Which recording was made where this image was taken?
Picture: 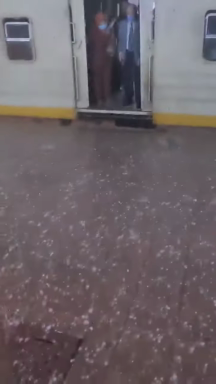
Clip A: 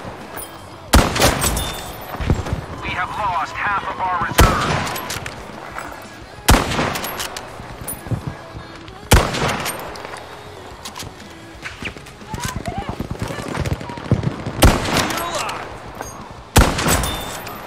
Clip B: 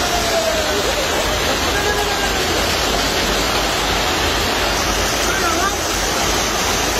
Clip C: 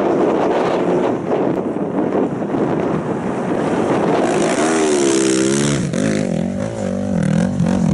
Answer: B